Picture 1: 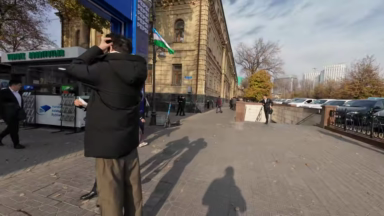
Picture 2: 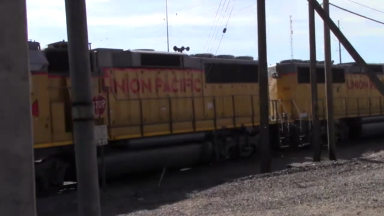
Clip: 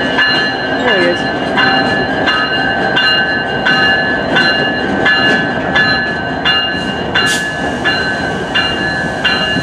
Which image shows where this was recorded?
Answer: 2